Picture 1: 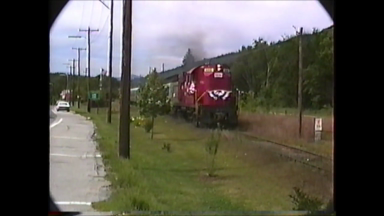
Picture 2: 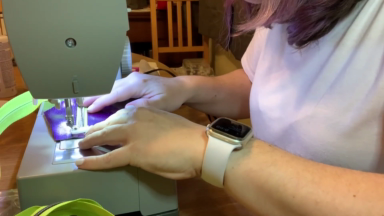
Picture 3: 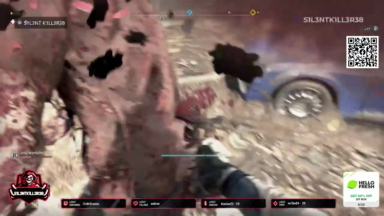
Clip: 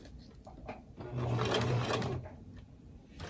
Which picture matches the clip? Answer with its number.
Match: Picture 2